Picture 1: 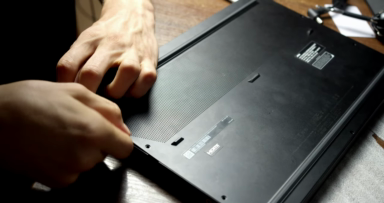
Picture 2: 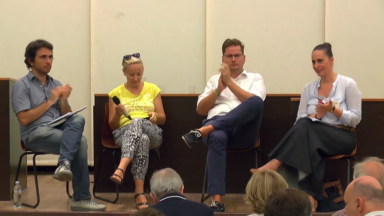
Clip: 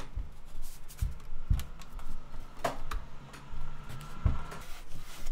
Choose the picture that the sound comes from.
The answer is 1